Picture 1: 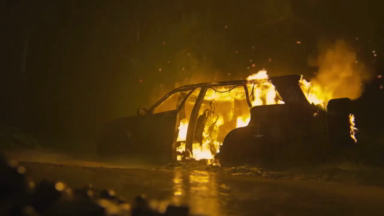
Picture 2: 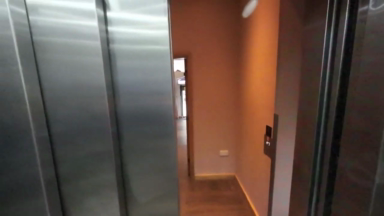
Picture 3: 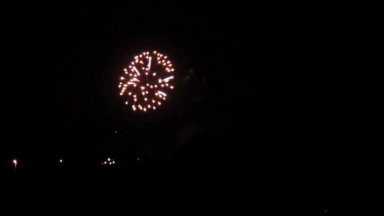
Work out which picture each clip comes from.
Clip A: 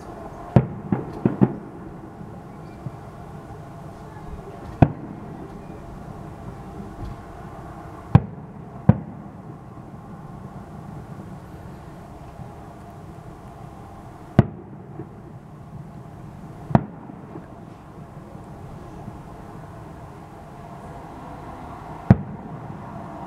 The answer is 3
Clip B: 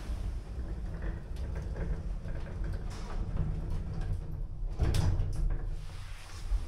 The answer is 2